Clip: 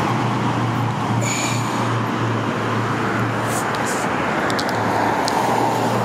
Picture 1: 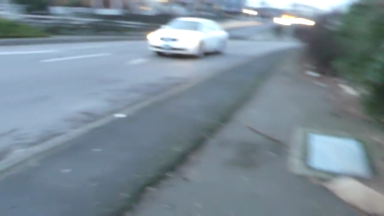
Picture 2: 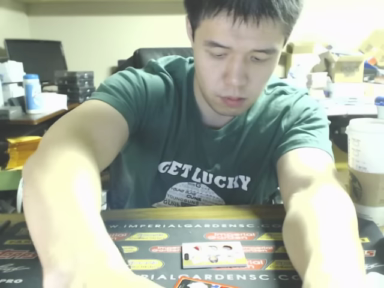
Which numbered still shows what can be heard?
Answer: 1